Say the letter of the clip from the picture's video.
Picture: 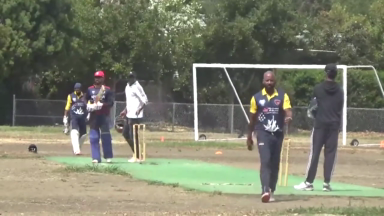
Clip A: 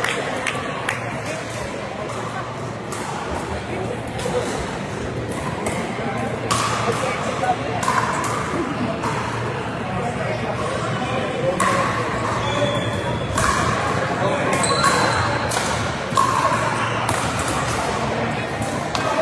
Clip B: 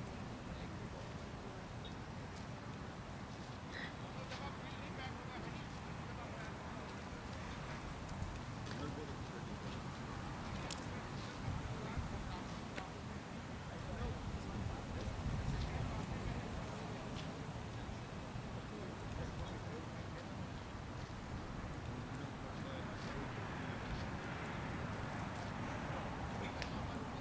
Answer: B